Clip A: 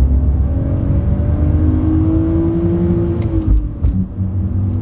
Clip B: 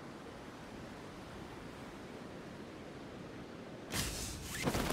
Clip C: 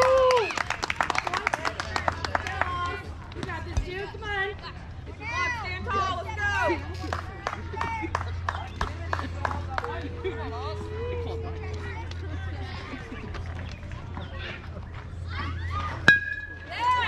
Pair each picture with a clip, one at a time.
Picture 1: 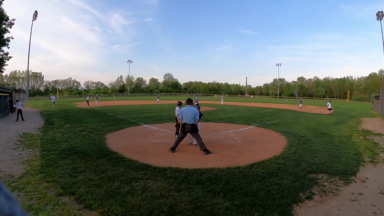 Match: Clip C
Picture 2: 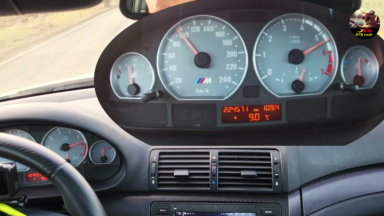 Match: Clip A